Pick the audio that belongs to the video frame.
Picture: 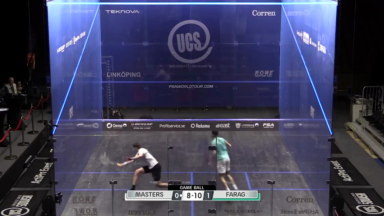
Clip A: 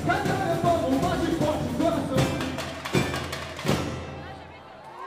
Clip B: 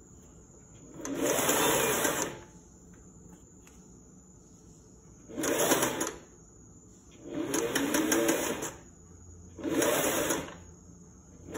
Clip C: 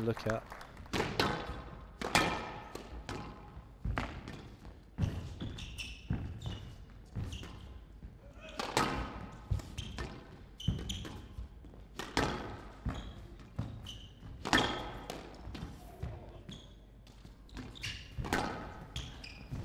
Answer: C